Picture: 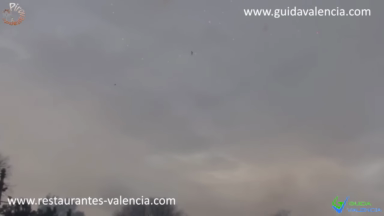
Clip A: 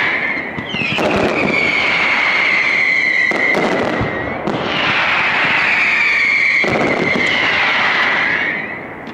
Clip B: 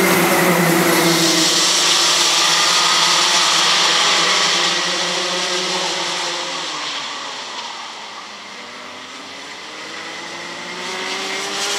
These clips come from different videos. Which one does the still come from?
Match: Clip A